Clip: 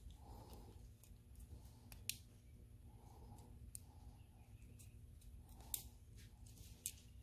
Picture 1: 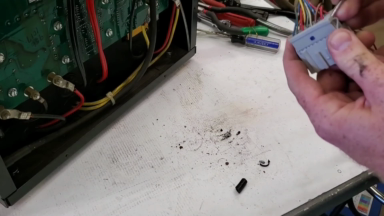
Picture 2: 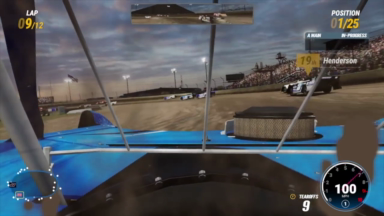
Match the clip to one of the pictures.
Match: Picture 1